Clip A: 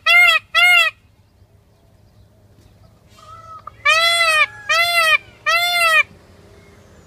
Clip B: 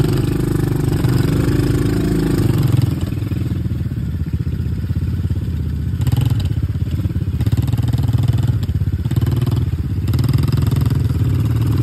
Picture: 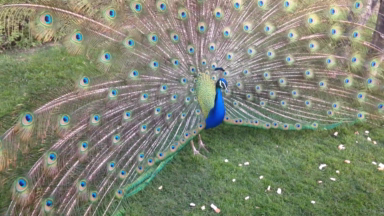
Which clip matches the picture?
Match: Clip A